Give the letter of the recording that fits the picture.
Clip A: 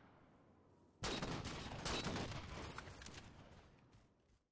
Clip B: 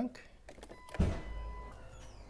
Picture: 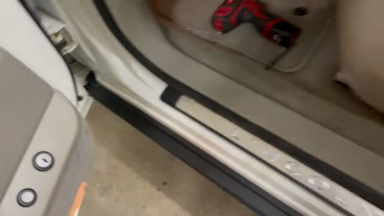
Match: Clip B